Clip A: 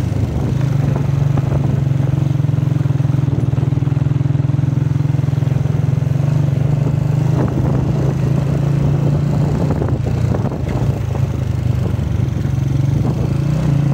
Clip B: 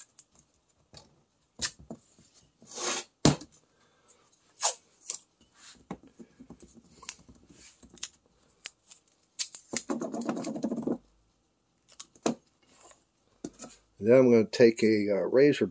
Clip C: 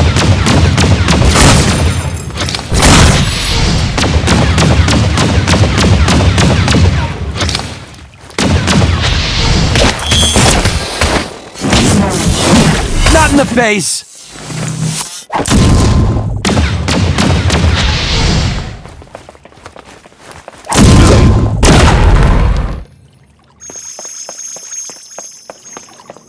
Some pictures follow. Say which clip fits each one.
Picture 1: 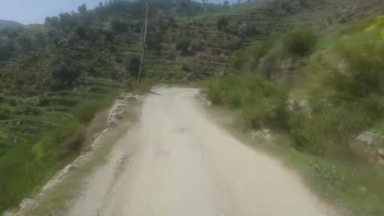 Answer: A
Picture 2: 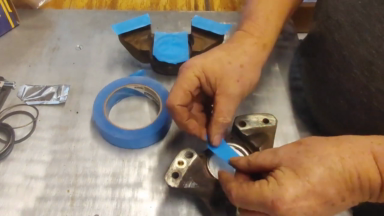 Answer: B